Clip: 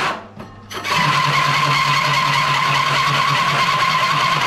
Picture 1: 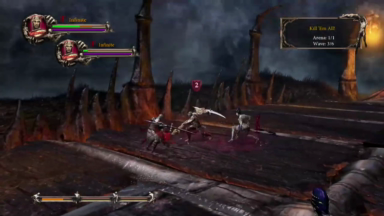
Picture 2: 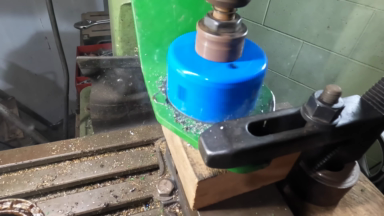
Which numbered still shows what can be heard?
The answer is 2